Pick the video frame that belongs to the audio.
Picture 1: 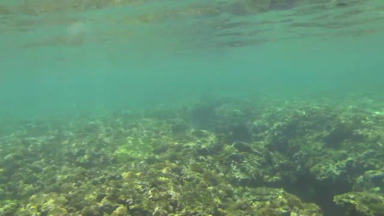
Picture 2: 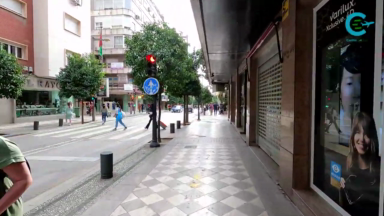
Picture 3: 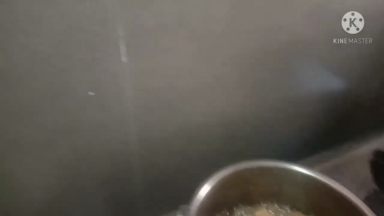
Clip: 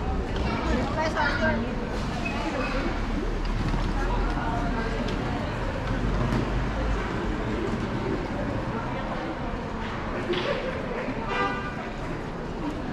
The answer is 2